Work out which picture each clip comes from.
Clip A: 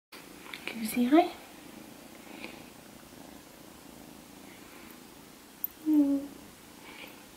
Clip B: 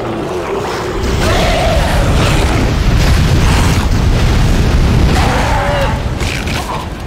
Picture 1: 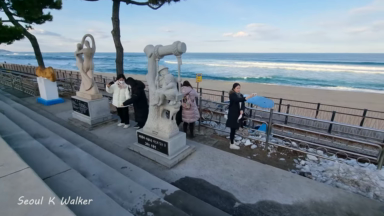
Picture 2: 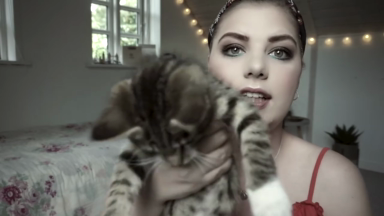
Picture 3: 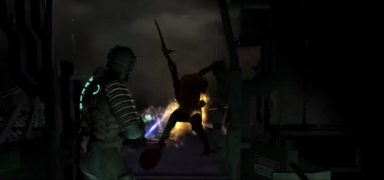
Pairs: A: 2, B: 3